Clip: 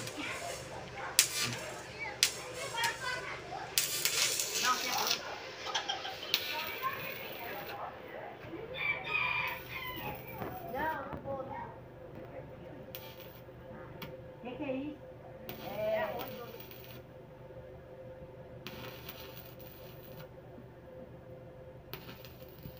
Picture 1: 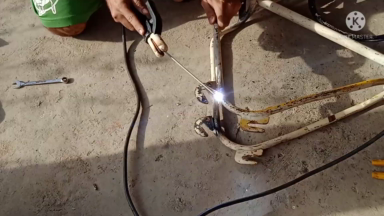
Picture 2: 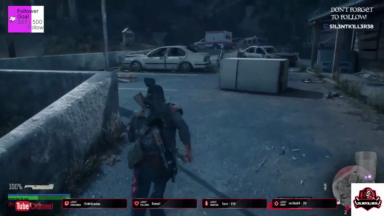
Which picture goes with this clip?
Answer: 1